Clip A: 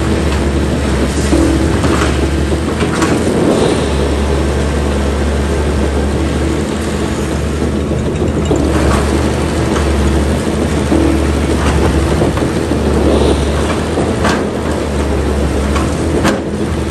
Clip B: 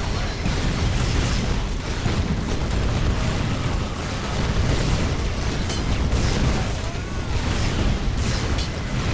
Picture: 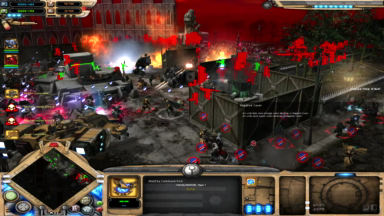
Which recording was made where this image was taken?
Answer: B